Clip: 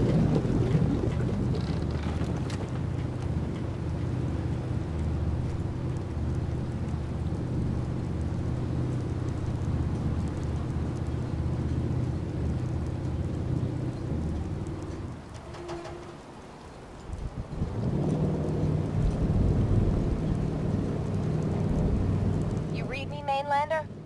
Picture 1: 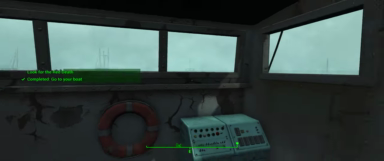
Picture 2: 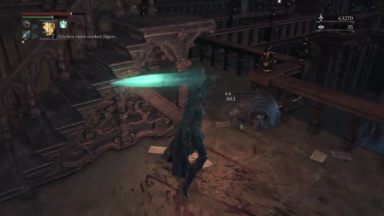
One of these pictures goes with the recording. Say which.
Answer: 1